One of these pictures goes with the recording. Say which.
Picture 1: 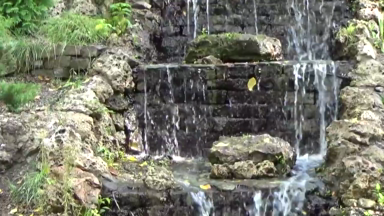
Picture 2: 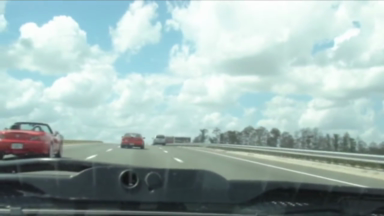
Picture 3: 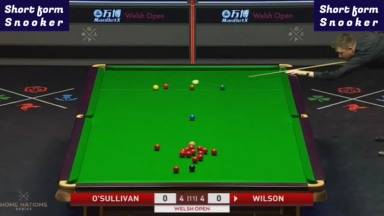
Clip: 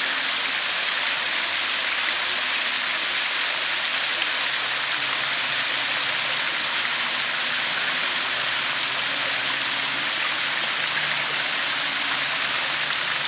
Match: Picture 1